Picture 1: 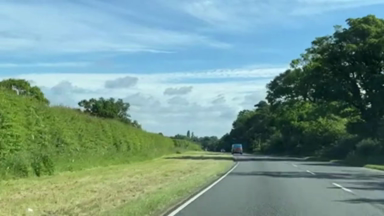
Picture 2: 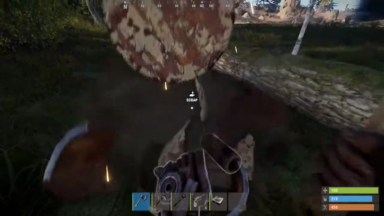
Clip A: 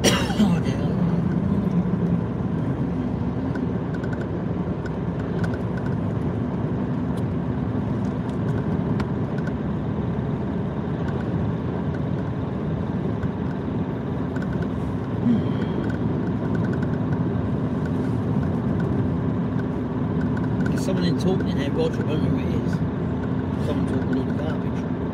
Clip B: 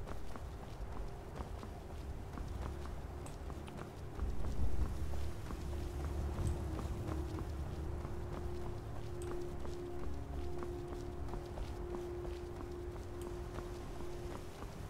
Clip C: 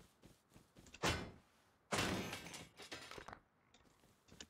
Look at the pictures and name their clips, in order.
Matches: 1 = A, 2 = C